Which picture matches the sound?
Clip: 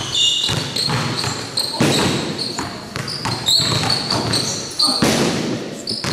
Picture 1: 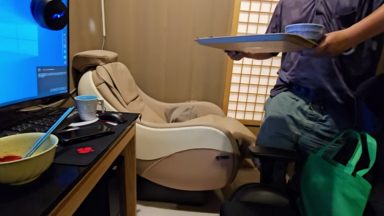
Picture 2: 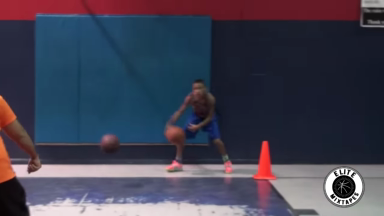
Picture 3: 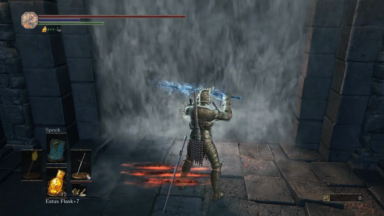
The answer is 2